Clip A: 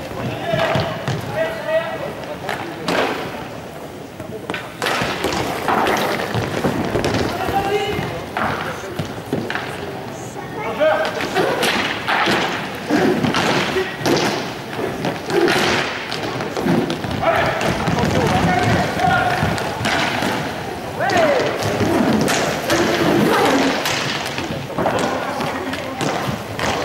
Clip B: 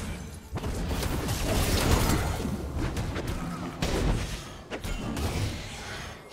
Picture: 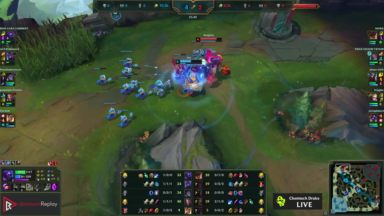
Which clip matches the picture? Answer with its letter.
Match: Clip B